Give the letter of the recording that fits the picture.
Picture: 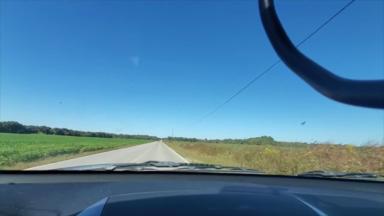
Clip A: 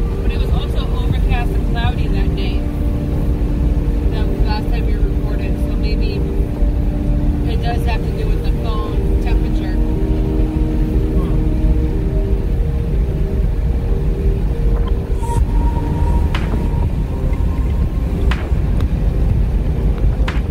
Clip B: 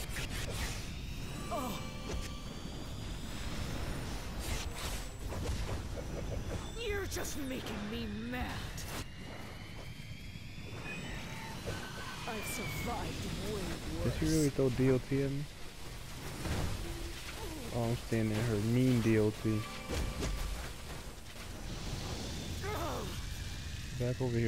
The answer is A